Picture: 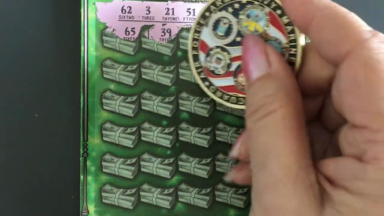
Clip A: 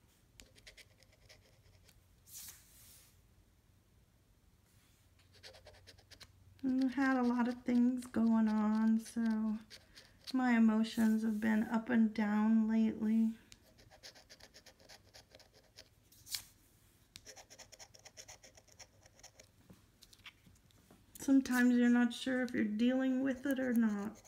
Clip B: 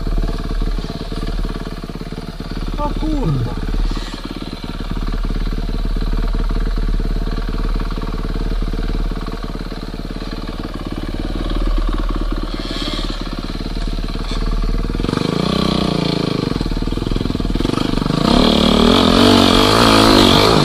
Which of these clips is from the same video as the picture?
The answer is A